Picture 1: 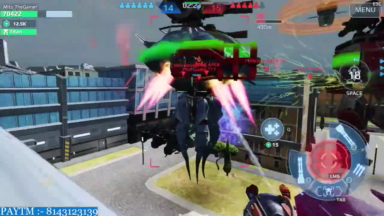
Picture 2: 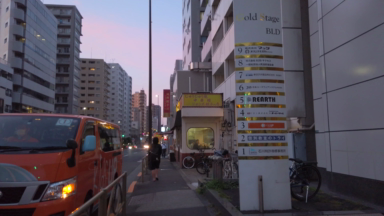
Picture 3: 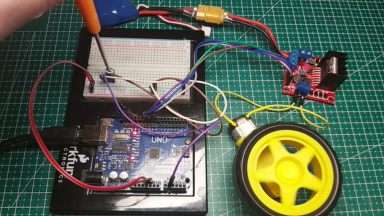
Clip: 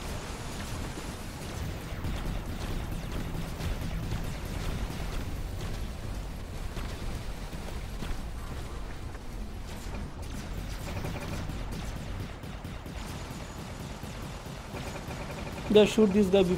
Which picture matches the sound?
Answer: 1